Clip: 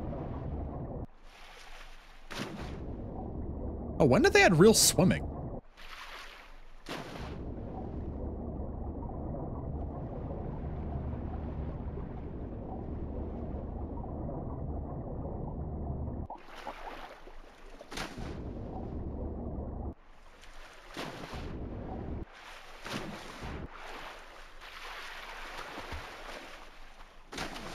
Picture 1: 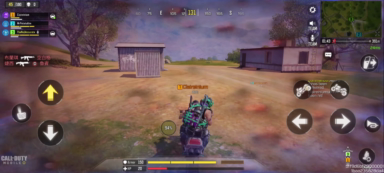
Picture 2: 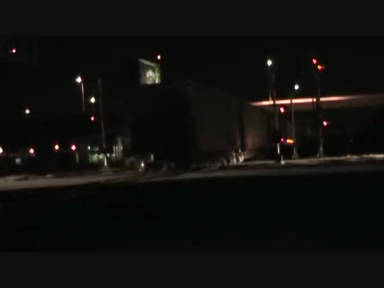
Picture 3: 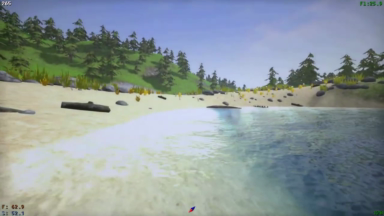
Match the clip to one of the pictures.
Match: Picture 3